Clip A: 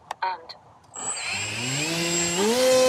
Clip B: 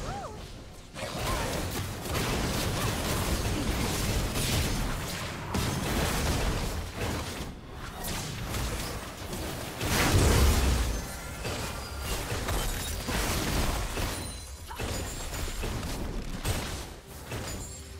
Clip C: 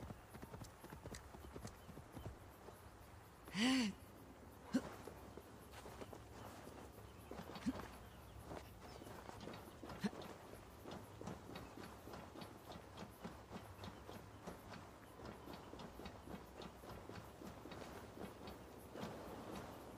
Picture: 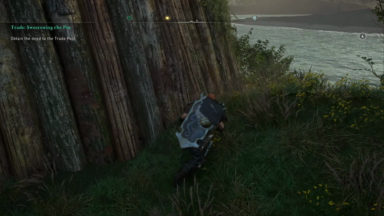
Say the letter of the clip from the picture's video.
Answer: C